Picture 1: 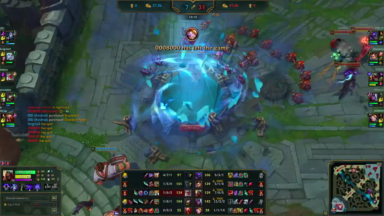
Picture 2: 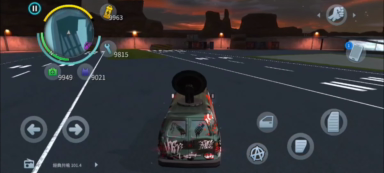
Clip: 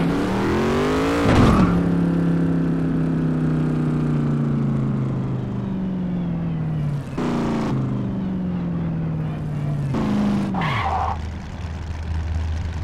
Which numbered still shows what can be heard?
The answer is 2